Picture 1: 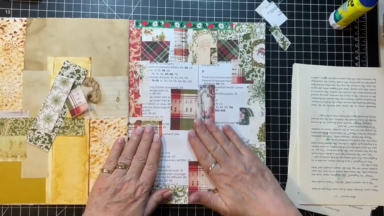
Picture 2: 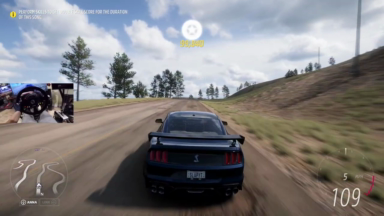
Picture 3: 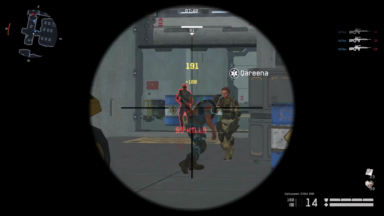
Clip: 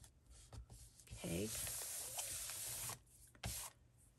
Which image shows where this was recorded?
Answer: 1